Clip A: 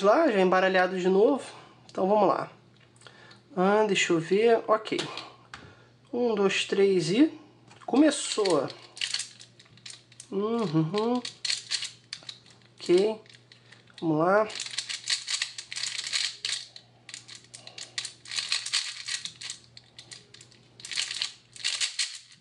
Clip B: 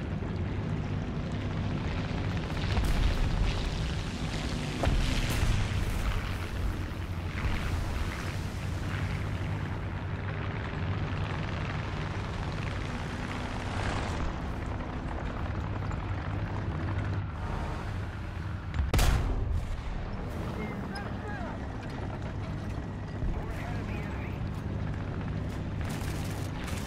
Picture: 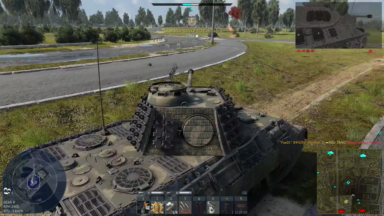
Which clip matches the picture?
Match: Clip B